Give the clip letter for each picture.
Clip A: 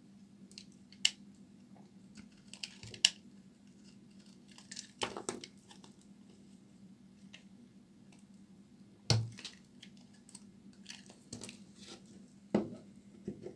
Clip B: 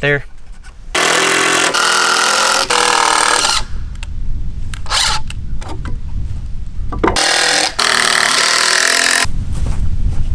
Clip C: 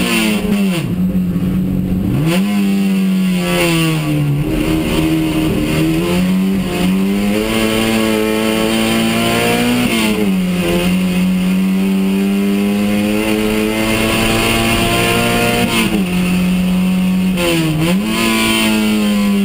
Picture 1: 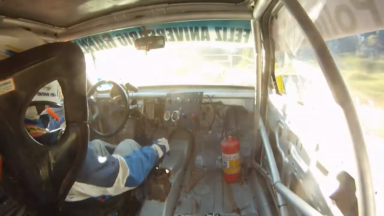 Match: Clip C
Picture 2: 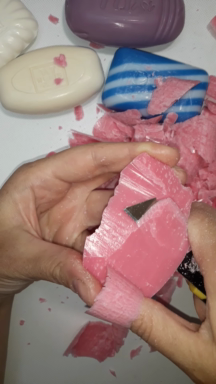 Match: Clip A